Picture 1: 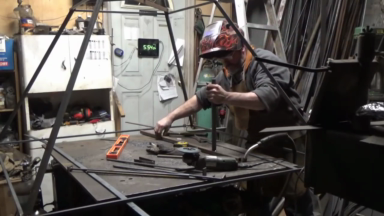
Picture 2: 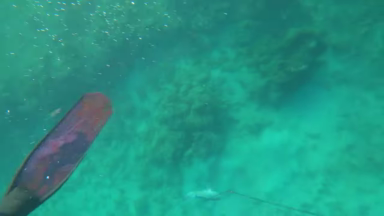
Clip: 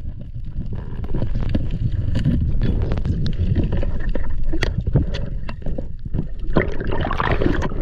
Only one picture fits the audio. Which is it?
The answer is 2